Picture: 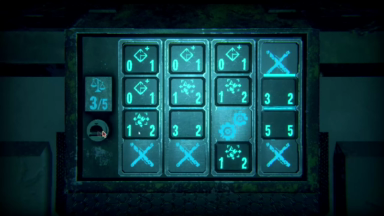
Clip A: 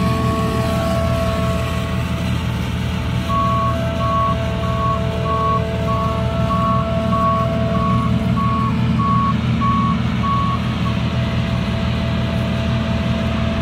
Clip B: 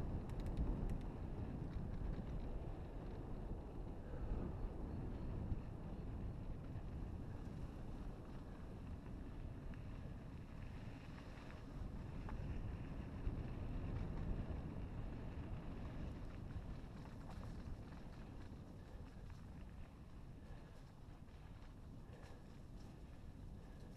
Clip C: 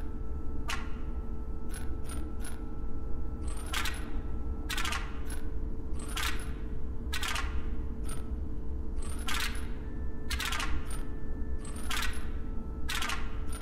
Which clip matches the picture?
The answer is C